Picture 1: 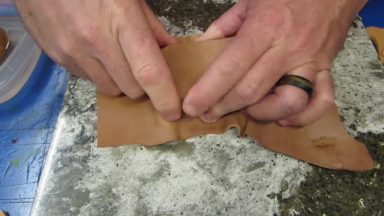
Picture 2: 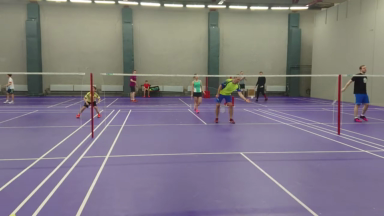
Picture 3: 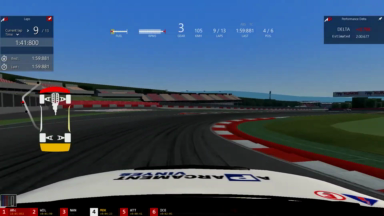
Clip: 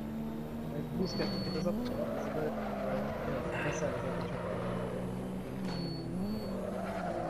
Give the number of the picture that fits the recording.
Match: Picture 3